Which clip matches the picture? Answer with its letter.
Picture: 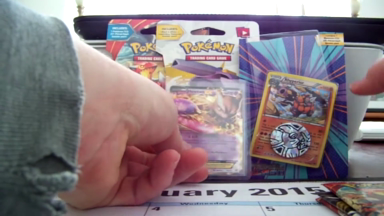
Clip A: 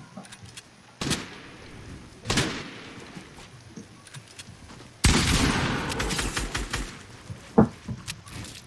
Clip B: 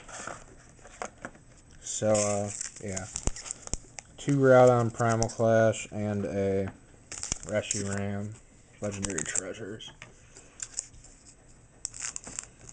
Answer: B